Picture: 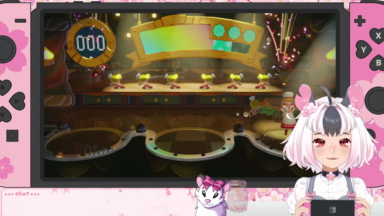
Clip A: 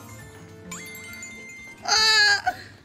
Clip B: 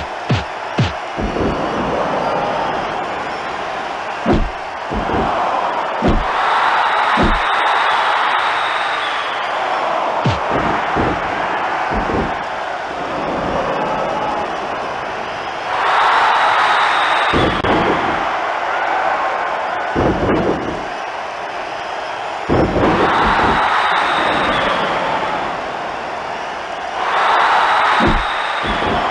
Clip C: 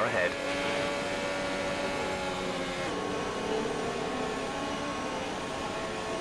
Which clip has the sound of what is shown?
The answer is A